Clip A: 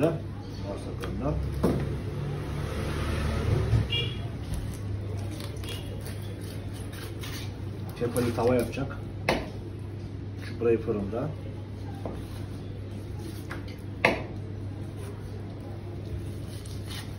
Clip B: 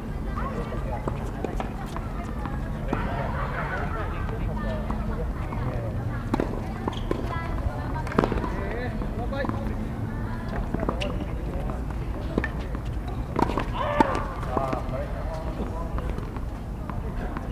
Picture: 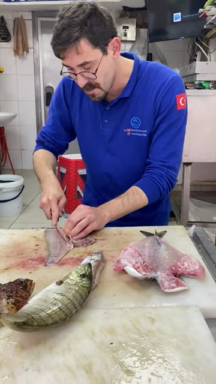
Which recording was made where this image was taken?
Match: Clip A